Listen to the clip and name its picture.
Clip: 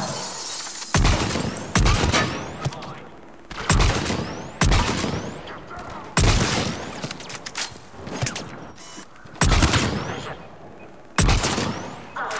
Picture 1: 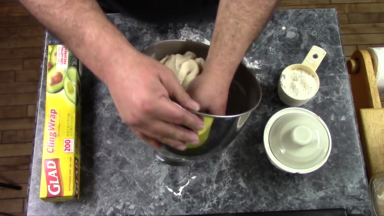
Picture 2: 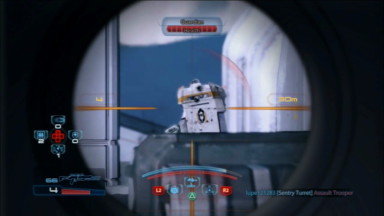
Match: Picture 2